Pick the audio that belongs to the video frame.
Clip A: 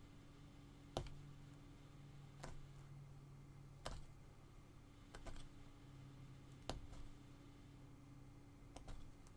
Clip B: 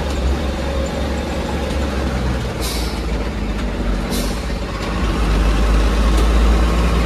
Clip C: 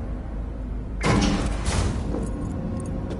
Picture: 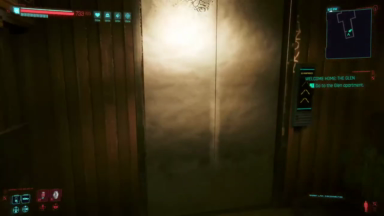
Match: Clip C